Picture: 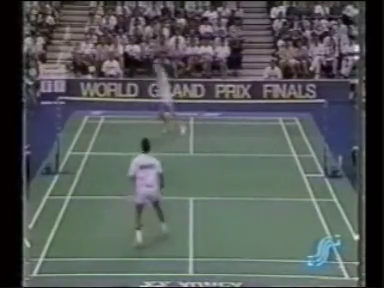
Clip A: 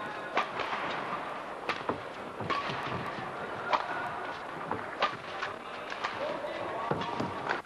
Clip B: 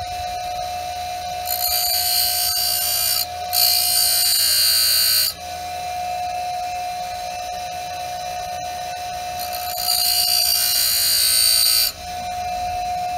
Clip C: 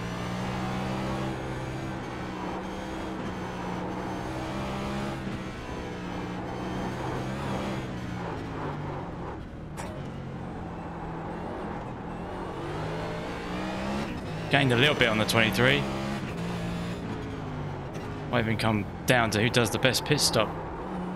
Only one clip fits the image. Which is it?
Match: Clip A